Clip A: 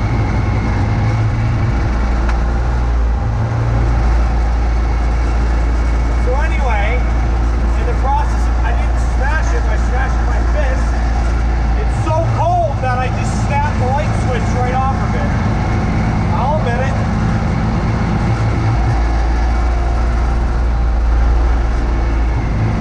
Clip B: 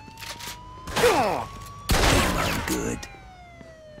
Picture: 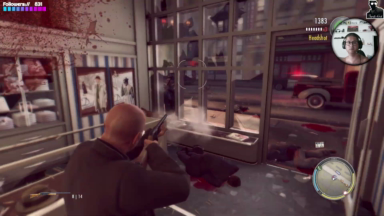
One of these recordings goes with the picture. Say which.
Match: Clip B